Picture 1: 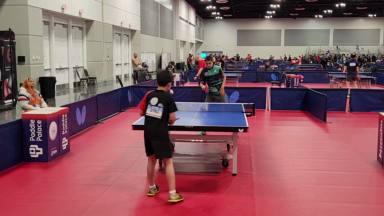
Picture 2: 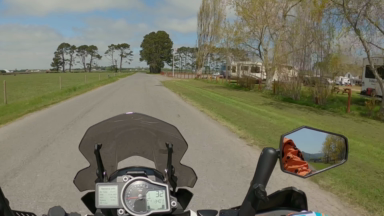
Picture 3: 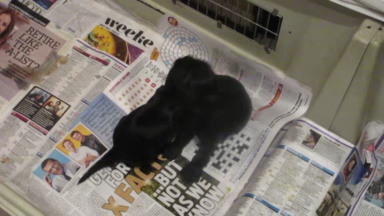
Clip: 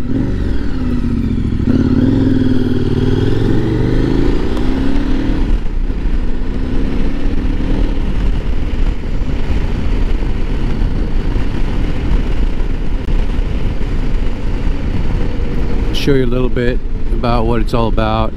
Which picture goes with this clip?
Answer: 2